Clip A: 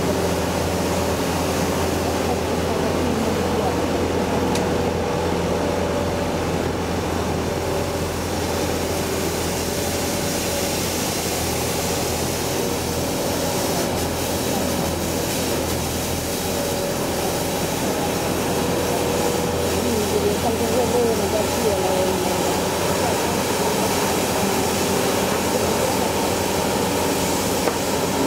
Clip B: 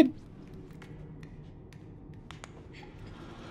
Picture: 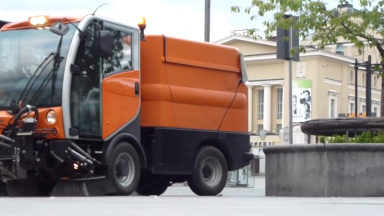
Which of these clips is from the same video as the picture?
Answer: A